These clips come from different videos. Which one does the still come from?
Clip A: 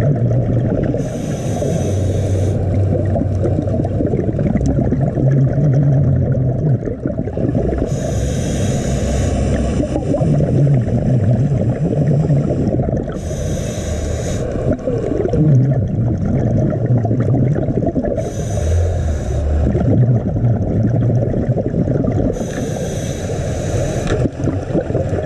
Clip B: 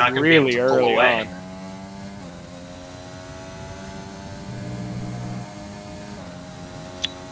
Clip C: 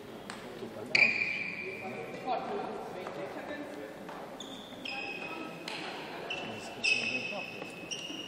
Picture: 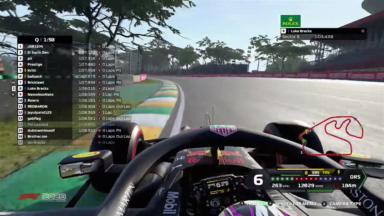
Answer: B